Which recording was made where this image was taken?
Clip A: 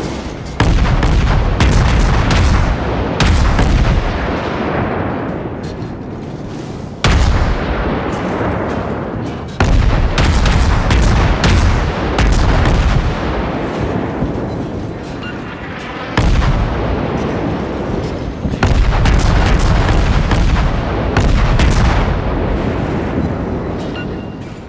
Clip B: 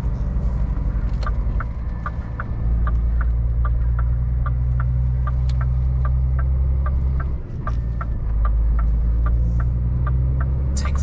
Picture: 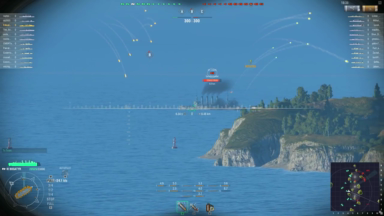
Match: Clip A